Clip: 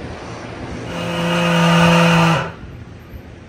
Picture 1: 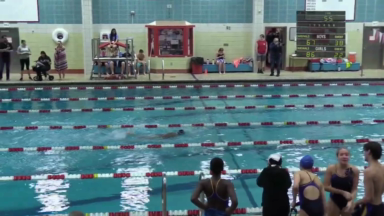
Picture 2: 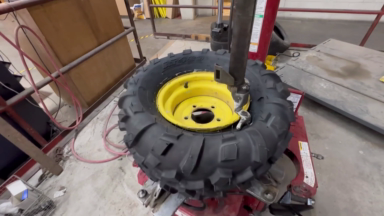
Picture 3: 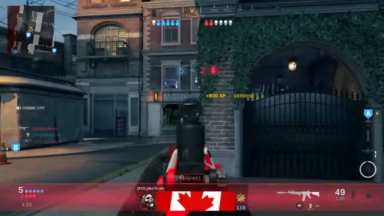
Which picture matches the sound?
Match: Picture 2